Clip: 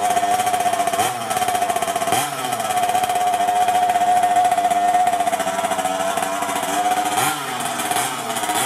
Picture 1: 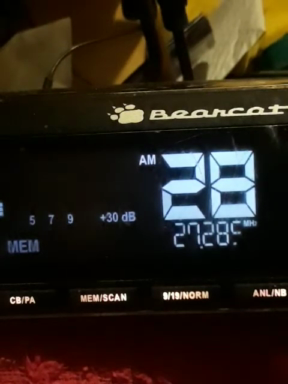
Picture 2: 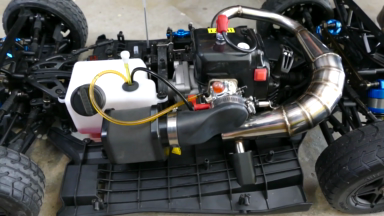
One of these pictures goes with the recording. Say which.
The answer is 2